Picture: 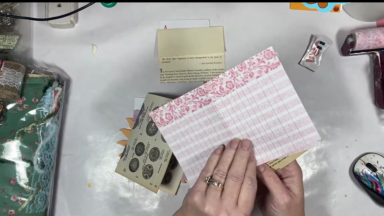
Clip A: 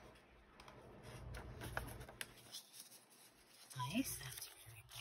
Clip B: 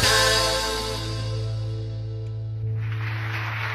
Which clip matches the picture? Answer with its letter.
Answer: A